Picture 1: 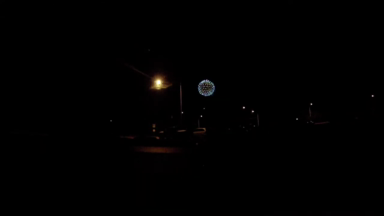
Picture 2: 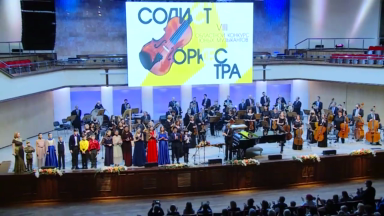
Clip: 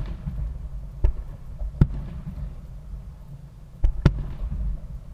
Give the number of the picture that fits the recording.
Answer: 1